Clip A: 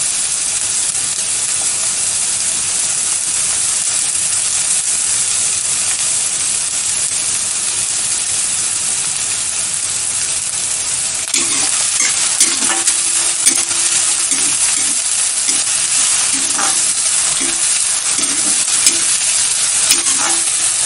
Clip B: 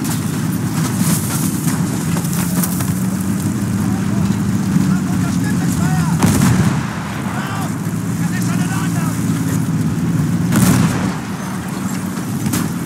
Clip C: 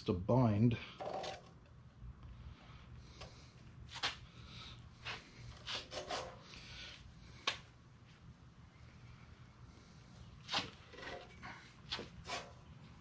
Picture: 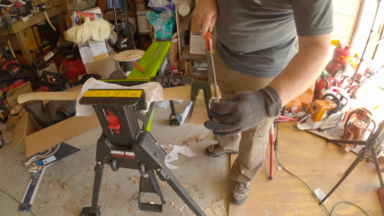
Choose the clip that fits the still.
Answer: C